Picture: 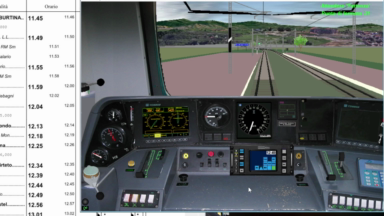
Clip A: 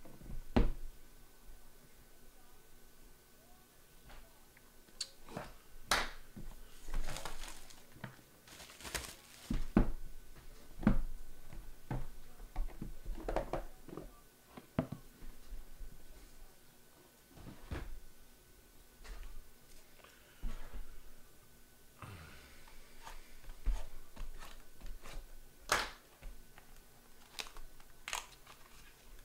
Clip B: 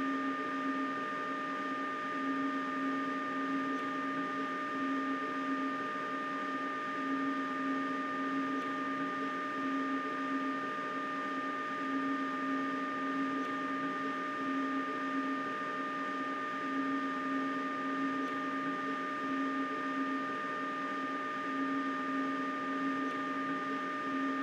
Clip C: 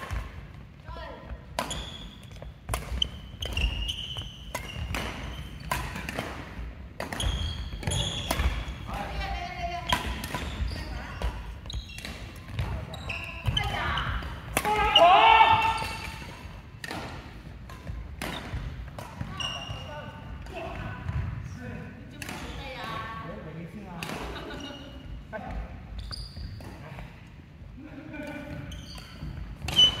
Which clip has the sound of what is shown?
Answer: B